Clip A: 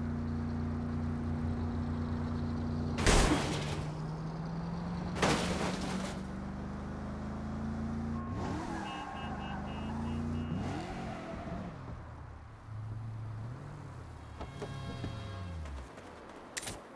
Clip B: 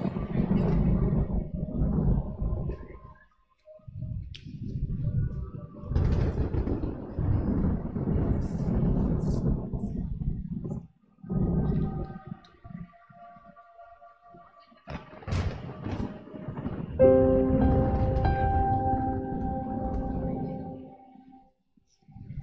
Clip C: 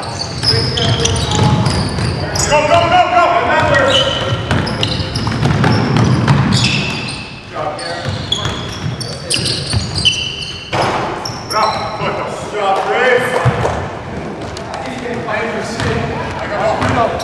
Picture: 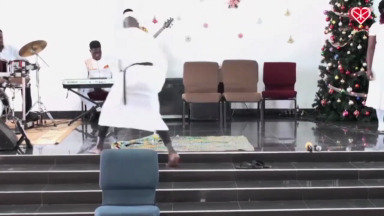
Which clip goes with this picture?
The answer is B